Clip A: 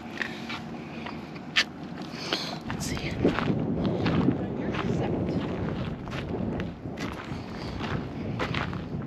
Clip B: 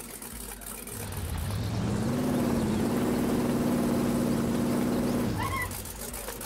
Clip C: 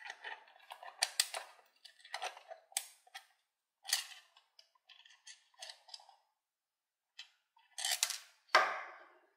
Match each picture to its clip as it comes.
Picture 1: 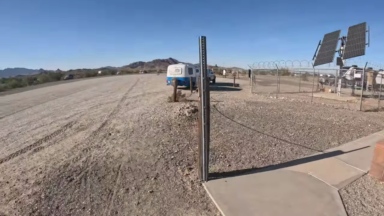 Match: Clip A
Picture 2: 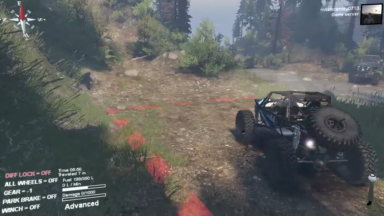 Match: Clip B